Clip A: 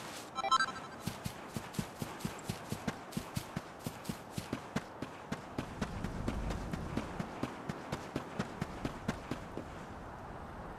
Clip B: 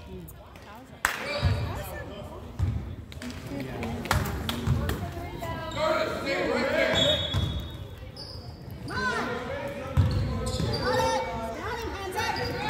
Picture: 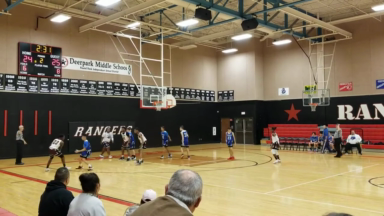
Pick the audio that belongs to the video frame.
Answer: B